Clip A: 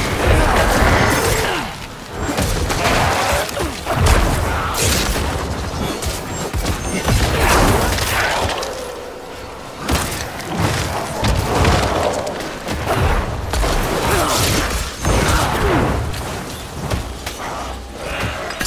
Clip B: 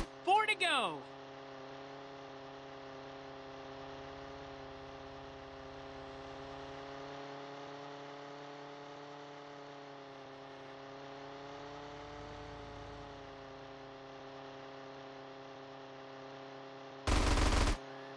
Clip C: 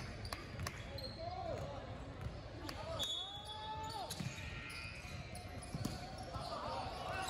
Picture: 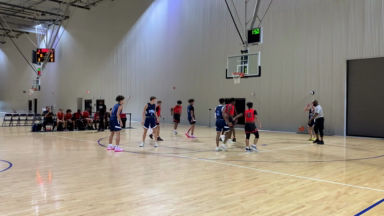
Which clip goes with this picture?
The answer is C